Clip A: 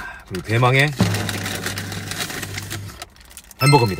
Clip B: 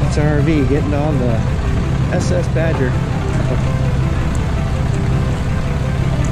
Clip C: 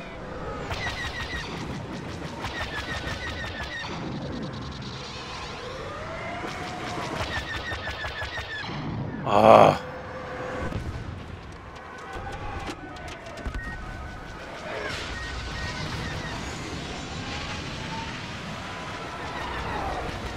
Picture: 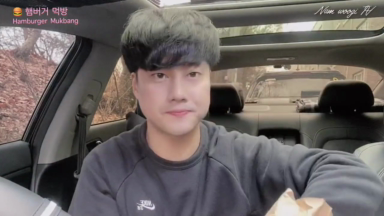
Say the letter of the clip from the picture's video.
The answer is A